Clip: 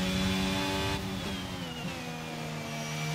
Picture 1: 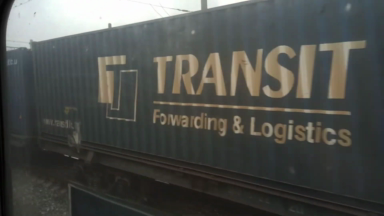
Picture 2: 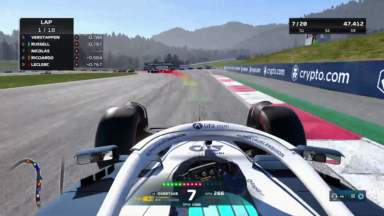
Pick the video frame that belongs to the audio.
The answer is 2